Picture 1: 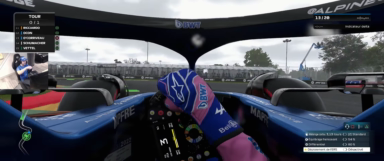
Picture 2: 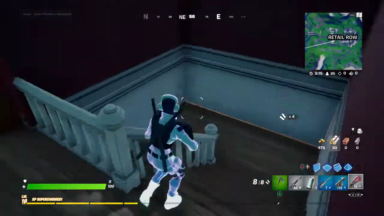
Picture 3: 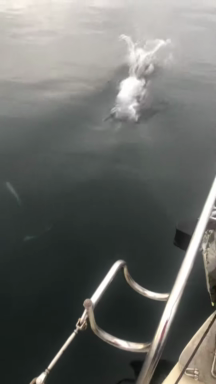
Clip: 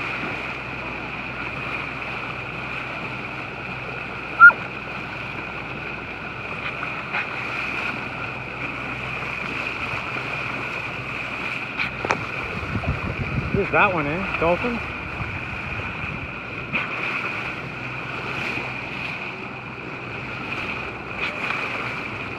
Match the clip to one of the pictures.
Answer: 3